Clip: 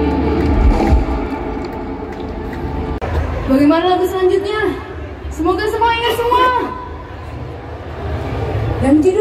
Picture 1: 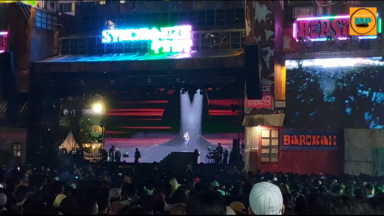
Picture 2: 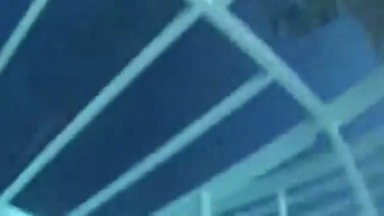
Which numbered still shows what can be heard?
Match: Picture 1